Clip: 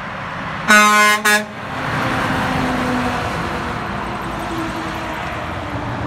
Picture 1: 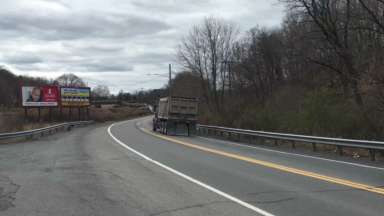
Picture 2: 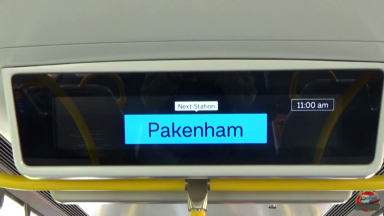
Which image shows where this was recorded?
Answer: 1